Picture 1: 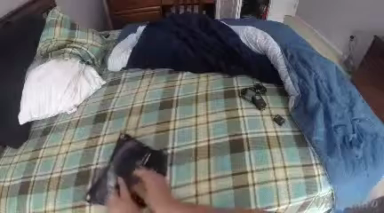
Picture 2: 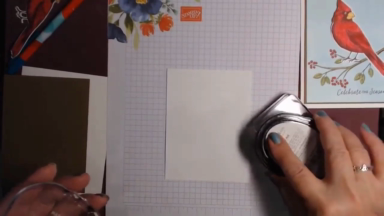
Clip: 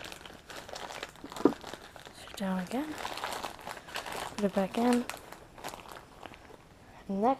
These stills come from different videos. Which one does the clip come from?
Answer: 1